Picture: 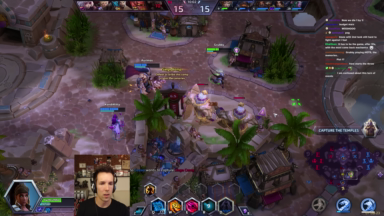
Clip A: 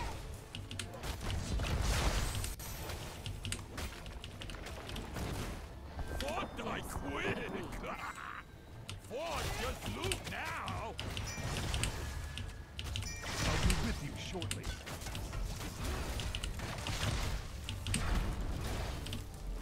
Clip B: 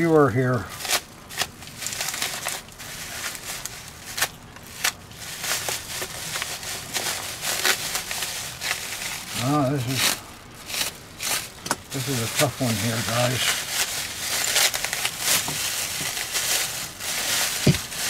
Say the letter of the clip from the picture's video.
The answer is A